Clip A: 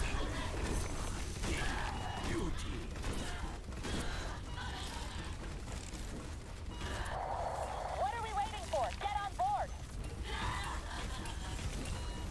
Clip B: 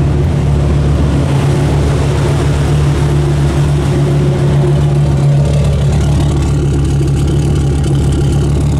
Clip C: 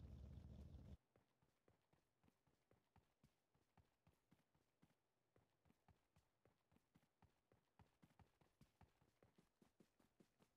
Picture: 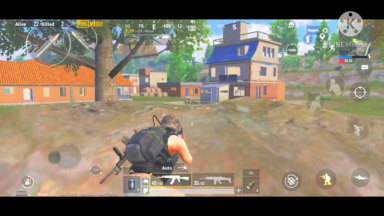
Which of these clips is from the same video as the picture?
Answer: C